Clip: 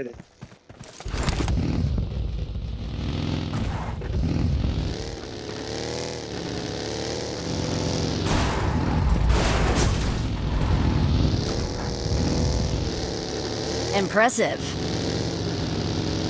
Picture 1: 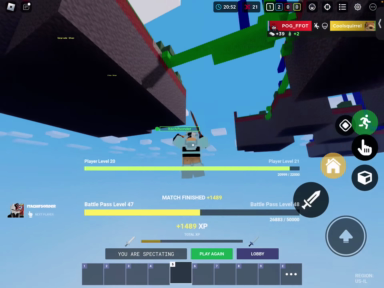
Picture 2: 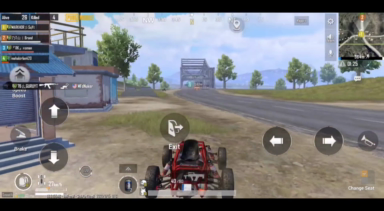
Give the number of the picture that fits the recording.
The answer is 2